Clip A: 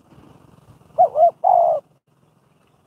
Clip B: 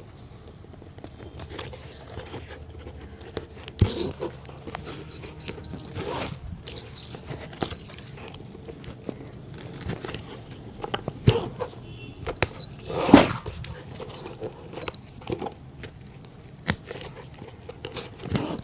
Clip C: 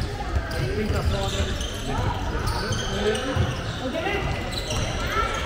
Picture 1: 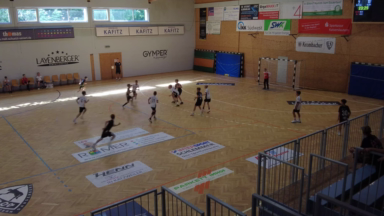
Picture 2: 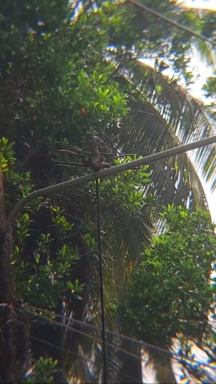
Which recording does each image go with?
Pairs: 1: C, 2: A